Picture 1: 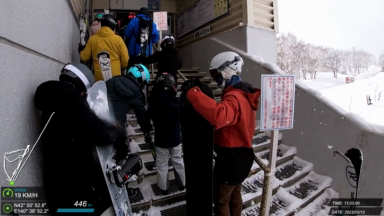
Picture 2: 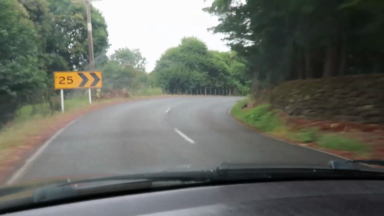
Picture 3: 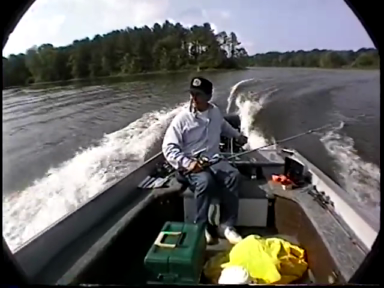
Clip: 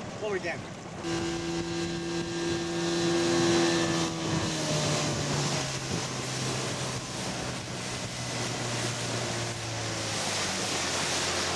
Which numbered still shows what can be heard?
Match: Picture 3